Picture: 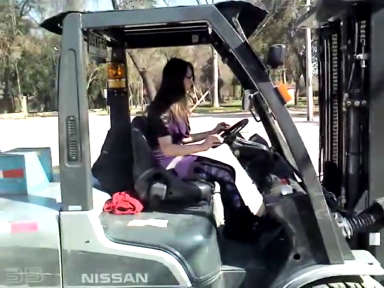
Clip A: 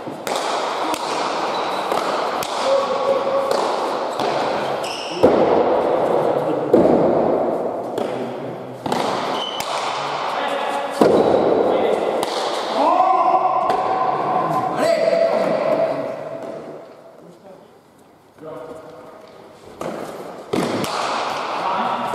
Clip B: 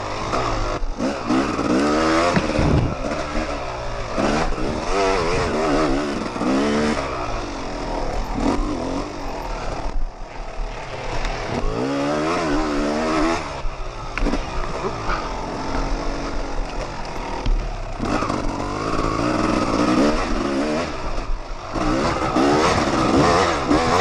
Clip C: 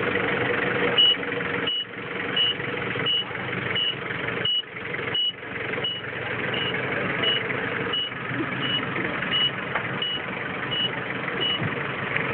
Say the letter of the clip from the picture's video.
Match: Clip C